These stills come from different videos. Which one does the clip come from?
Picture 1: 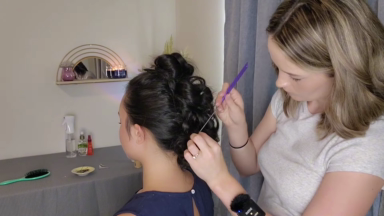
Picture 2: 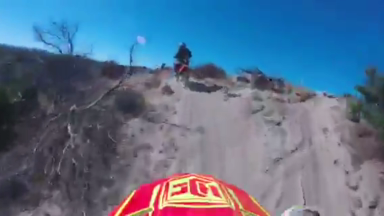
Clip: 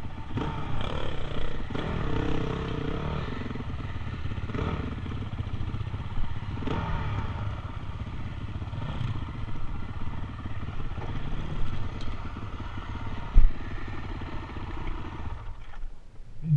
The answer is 2